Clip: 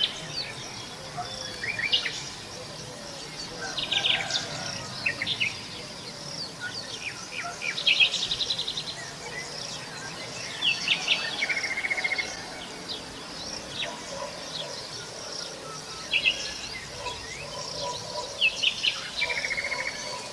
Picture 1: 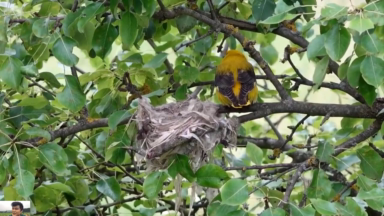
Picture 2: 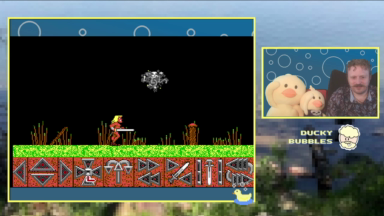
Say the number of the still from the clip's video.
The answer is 1